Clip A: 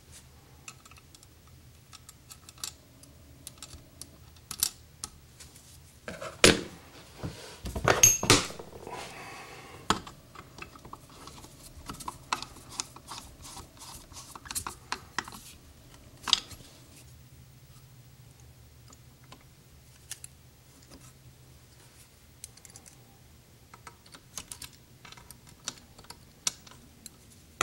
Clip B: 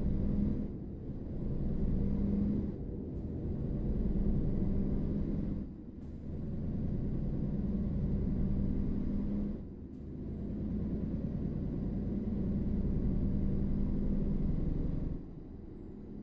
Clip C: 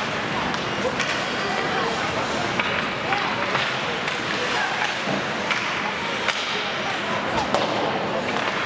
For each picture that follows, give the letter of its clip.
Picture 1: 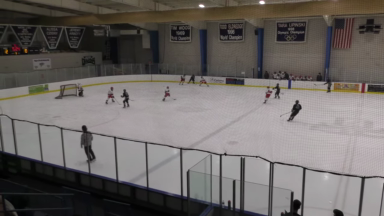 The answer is C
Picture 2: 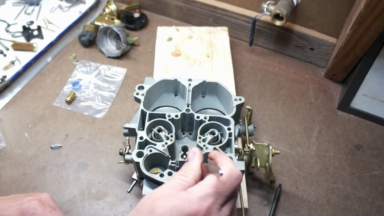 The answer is A